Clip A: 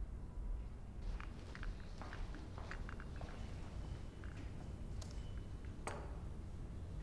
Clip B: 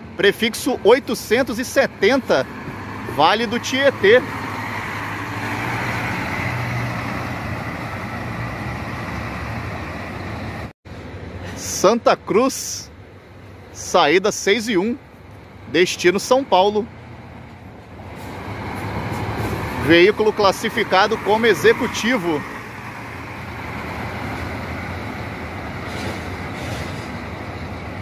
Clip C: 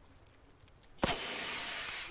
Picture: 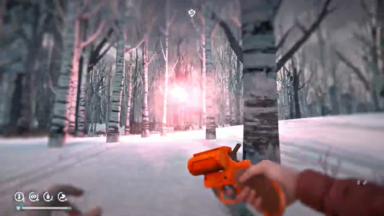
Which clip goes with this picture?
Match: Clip C